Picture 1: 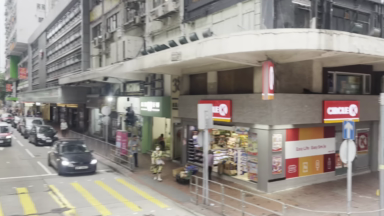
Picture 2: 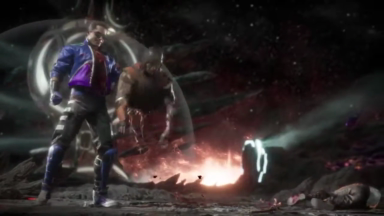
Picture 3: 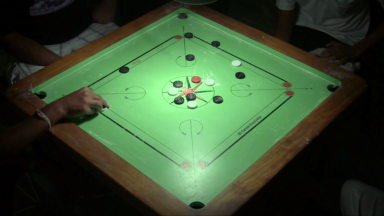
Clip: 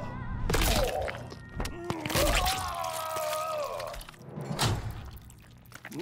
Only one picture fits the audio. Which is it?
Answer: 2